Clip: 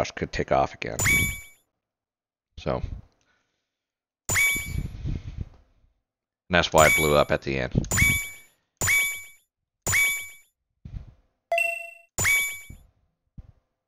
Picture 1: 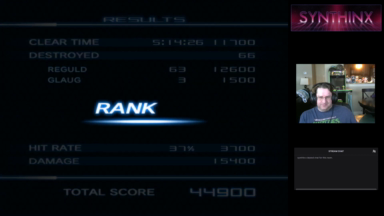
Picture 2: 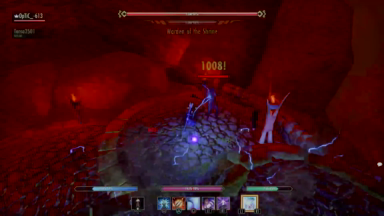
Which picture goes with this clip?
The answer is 1